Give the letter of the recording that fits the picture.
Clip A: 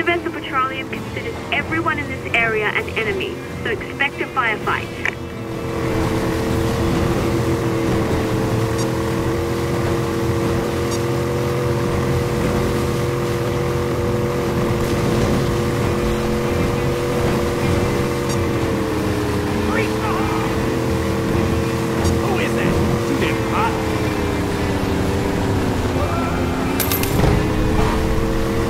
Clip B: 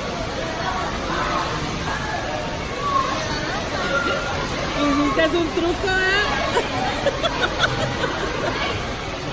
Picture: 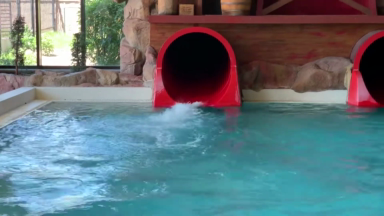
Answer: B